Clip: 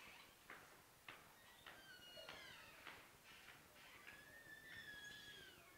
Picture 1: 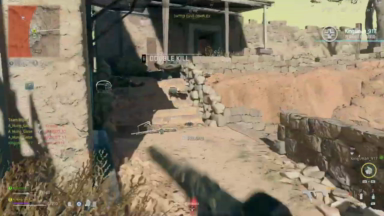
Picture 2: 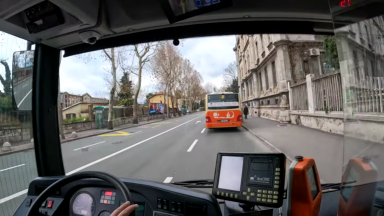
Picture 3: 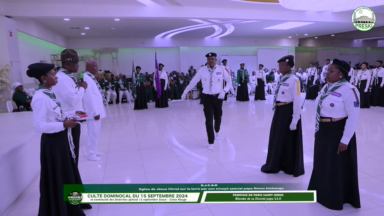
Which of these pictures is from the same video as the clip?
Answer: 3